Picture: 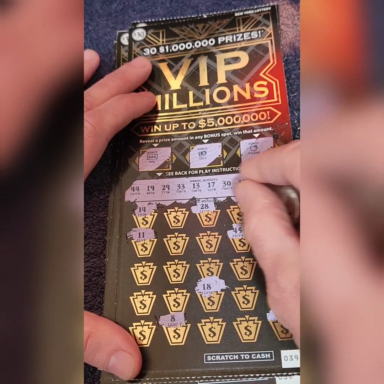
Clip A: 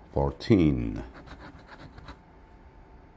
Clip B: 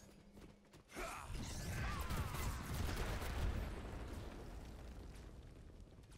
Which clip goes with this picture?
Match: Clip A